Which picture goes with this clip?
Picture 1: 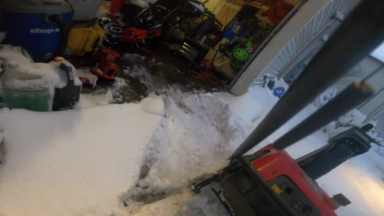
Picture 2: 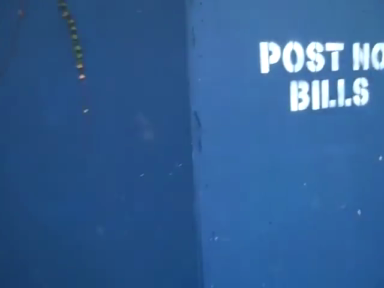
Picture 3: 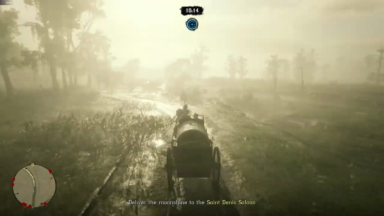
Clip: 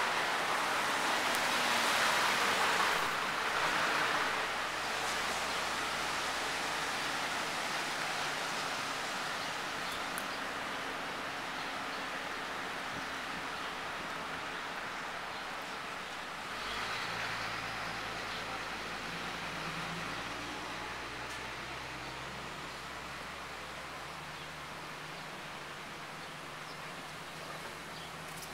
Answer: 2